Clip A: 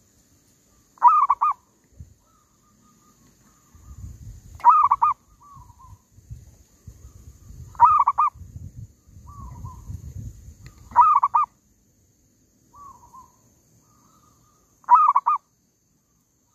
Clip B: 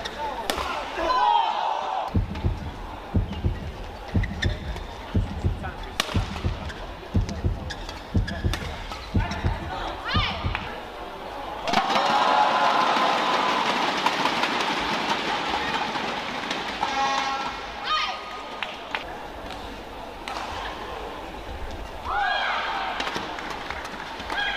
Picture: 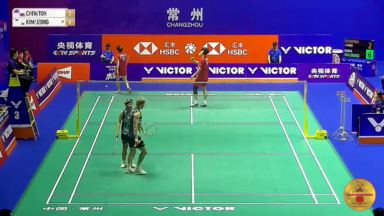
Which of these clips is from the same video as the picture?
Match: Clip B